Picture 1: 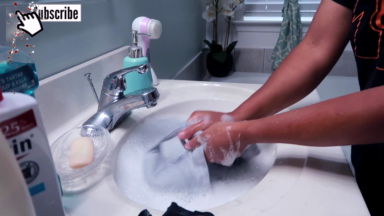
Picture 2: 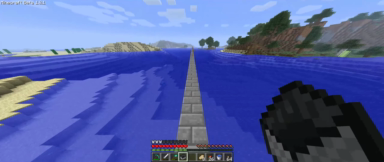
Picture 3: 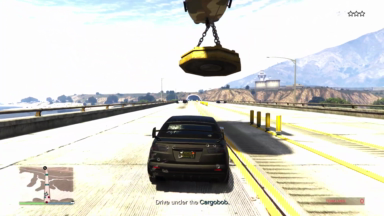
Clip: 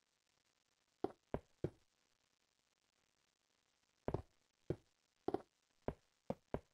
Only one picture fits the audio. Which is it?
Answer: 2